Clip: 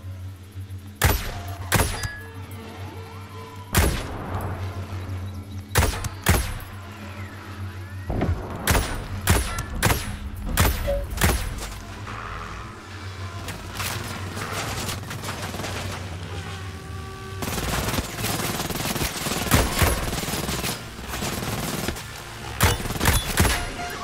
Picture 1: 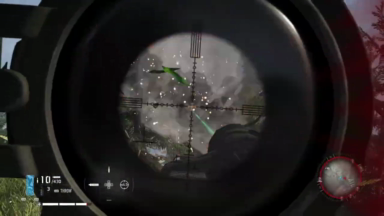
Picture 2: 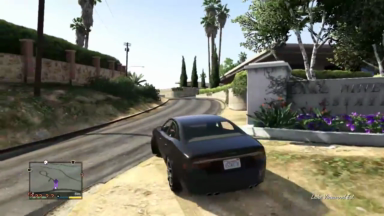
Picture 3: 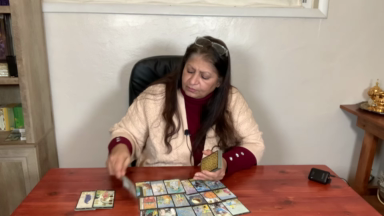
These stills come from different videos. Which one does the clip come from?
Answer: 1